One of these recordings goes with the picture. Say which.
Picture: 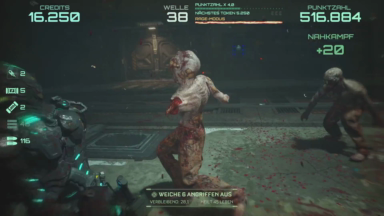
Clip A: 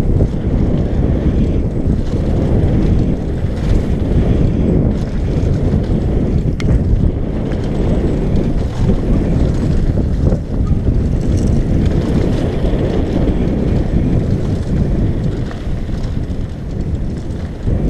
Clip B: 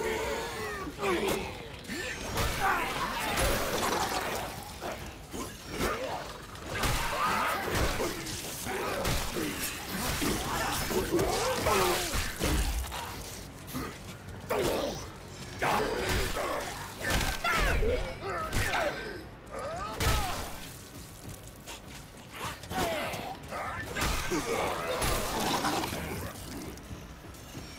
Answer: B